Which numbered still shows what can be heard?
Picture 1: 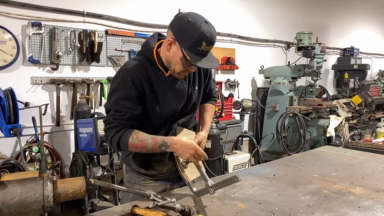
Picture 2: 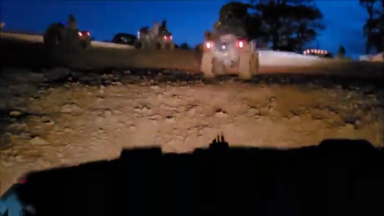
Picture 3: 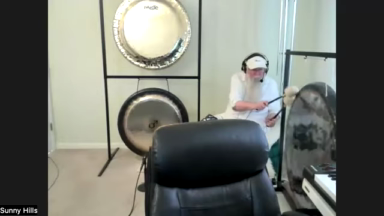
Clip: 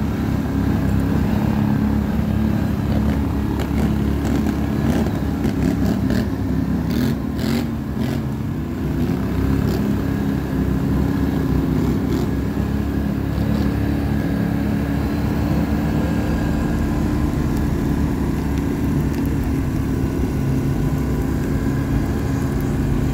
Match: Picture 2